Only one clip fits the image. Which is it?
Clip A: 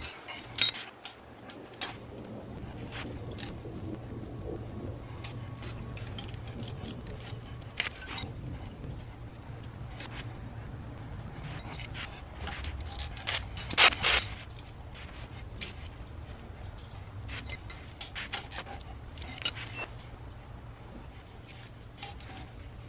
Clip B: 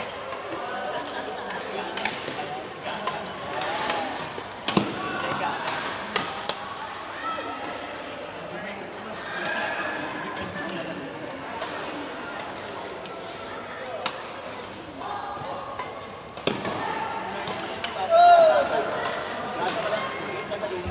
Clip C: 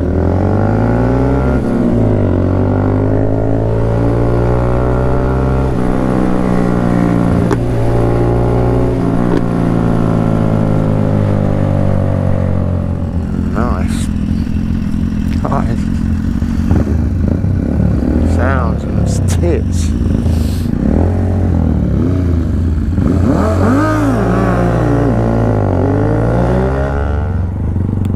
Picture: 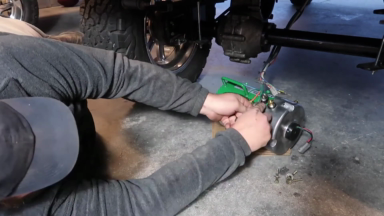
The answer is A